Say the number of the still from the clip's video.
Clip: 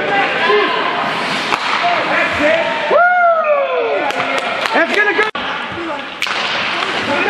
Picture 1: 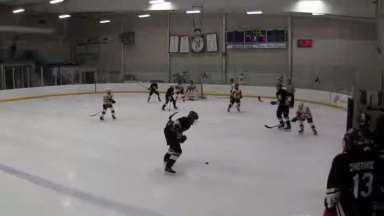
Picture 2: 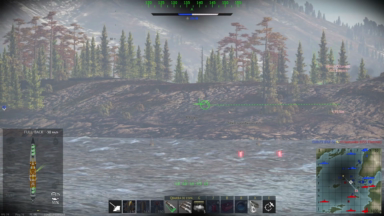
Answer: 1